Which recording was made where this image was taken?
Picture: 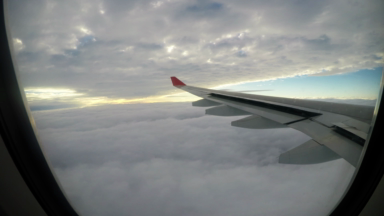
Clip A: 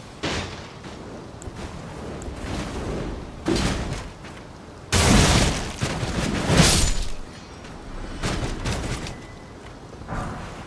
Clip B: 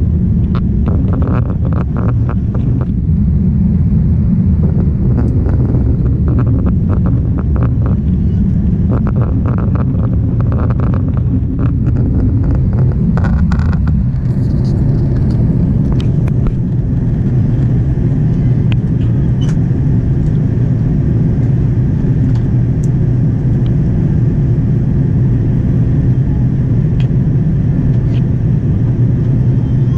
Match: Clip B